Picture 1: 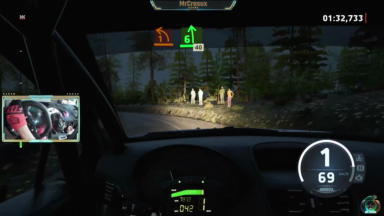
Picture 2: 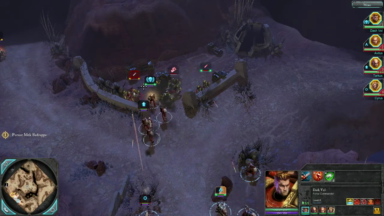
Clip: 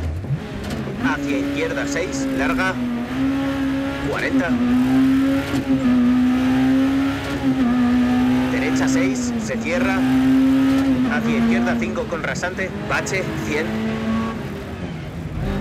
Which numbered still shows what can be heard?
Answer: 1